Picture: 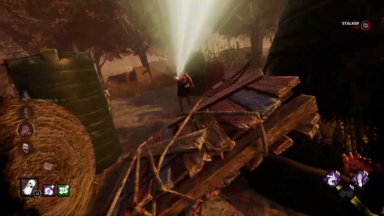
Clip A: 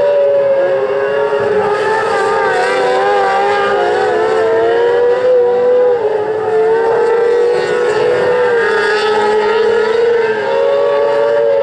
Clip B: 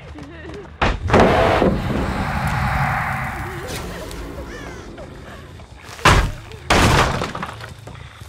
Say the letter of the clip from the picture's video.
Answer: B